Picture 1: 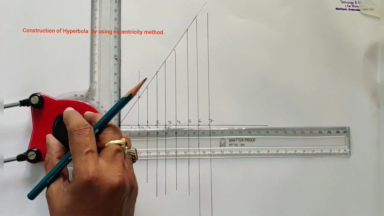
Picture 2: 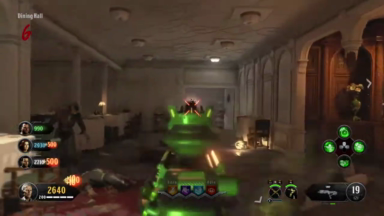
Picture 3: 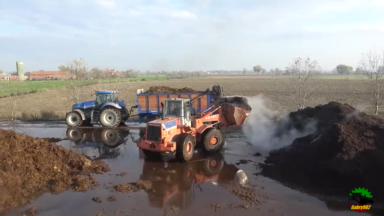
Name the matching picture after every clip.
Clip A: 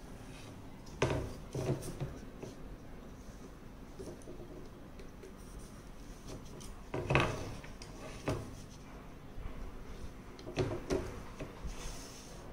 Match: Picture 1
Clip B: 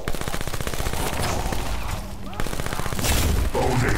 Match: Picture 2